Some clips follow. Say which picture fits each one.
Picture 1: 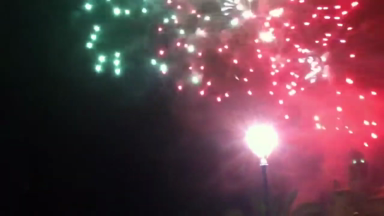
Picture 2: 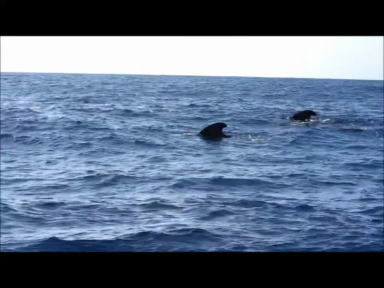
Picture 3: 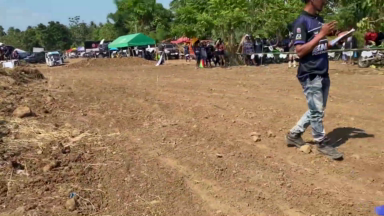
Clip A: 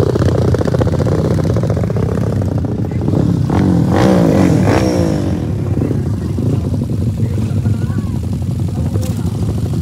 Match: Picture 3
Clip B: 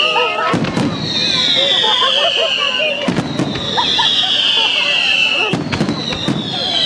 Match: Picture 1